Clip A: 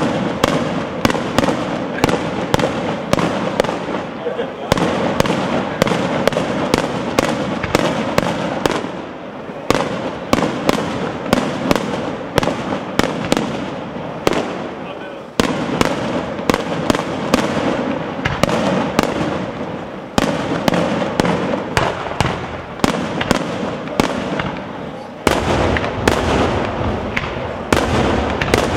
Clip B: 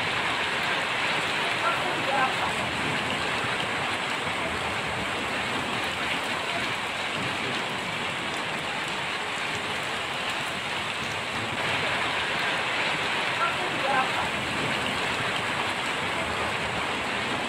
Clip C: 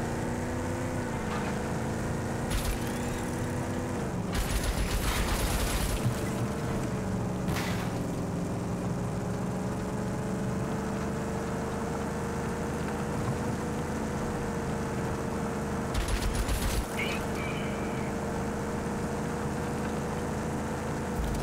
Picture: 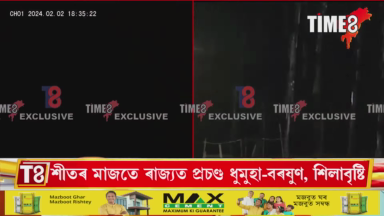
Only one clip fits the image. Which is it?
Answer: B